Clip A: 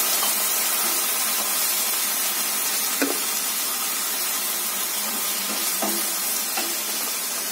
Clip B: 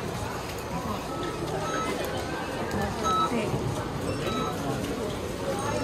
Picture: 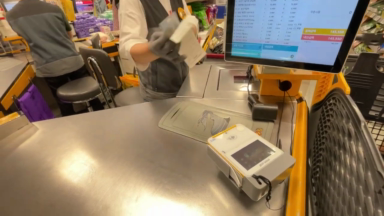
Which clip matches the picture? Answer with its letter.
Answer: B